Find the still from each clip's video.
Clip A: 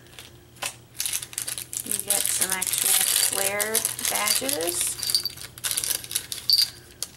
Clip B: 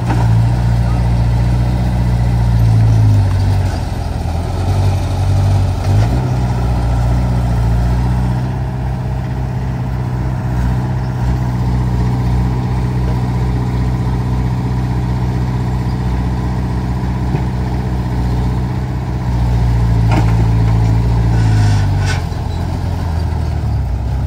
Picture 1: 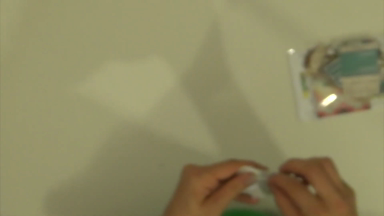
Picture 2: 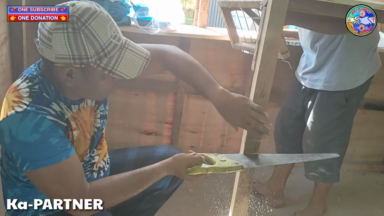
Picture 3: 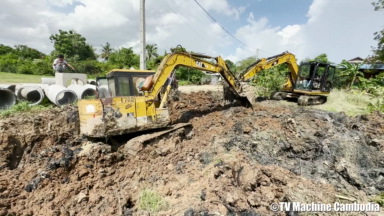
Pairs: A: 1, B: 3